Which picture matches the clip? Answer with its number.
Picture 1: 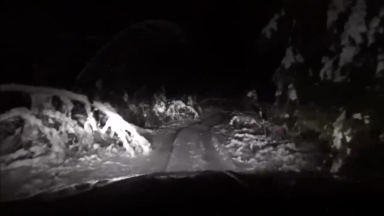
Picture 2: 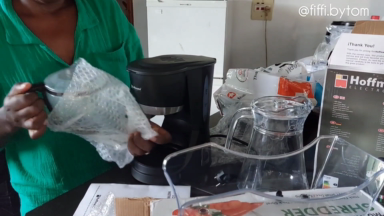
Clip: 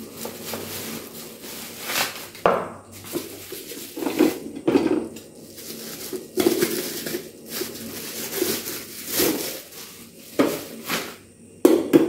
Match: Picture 2